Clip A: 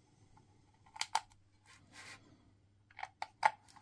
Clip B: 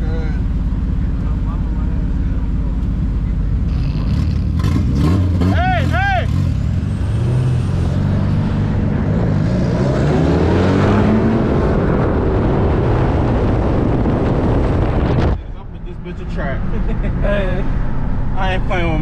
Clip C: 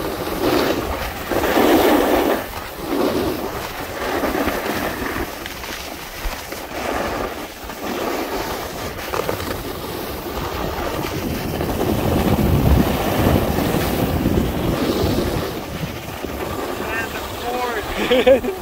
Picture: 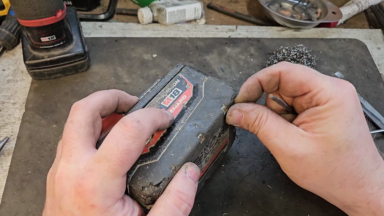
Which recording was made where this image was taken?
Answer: A